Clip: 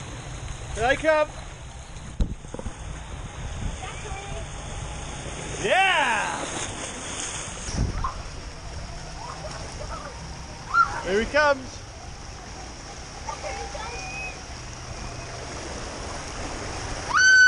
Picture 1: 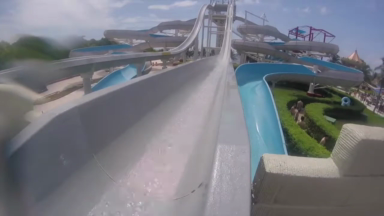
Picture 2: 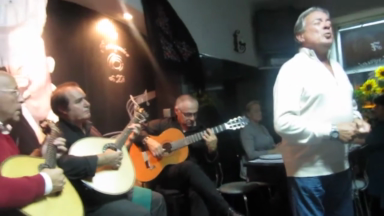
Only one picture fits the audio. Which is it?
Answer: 1